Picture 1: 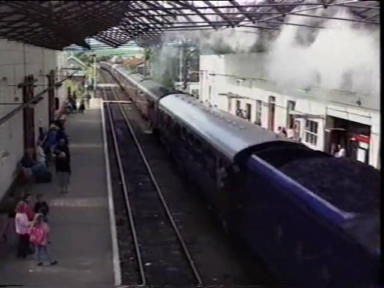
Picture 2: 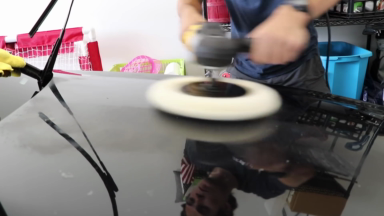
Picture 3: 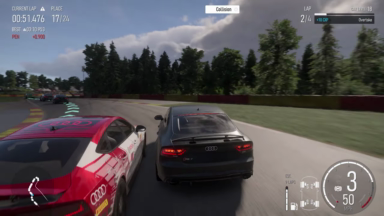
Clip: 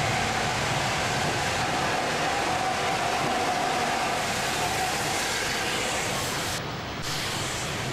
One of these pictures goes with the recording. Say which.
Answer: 1